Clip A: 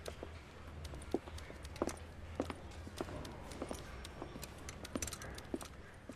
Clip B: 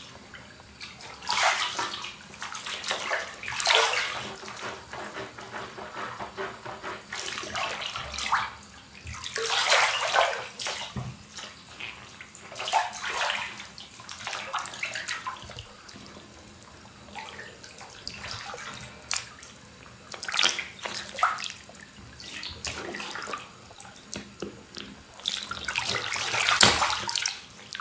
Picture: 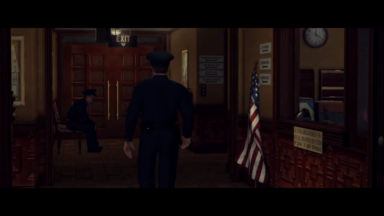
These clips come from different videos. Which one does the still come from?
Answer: A